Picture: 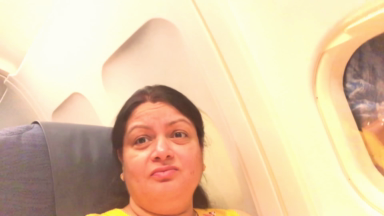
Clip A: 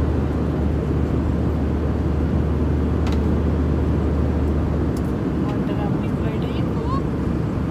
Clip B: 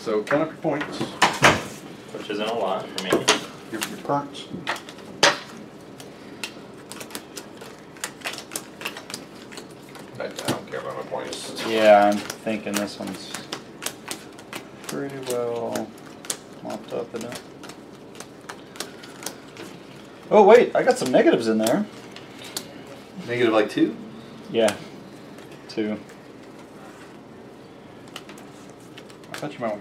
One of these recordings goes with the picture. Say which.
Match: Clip A